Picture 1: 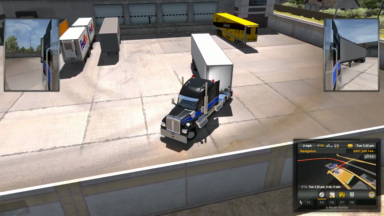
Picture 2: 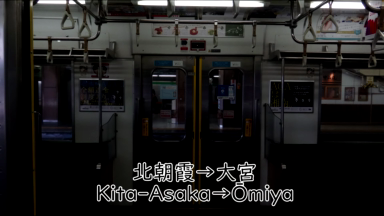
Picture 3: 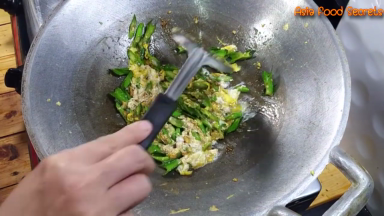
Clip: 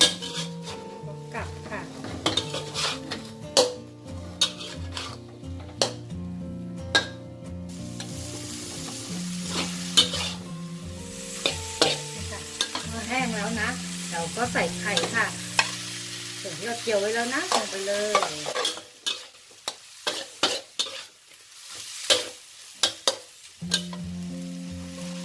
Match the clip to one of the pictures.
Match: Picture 3